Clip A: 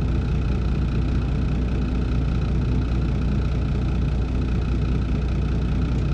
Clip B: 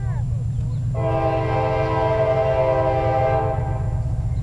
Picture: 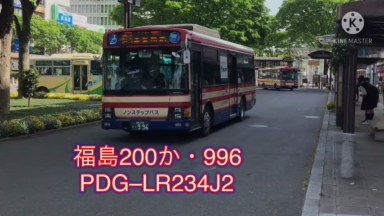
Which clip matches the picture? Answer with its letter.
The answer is A